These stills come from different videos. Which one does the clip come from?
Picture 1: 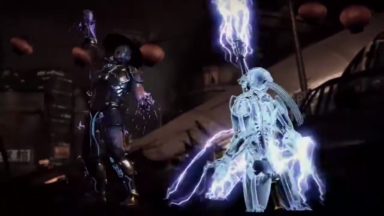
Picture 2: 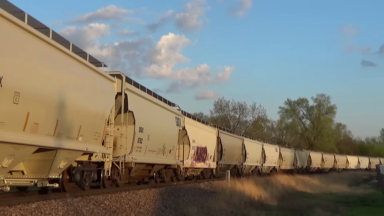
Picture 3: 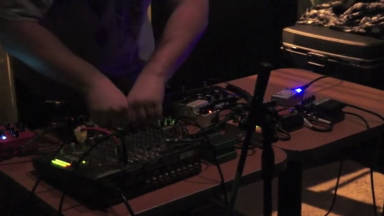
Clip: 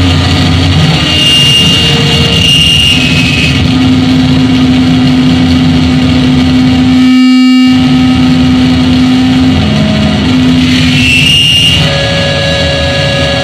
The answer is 3